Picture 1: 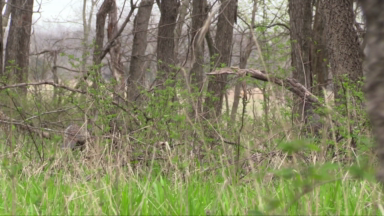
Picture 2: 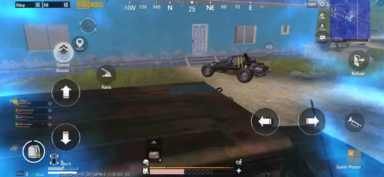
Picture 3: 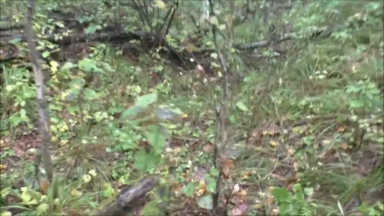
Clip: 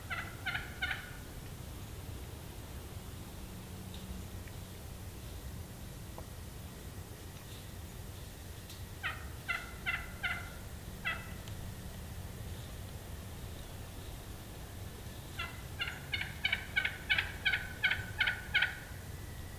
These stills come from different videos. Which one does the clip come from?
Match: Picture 1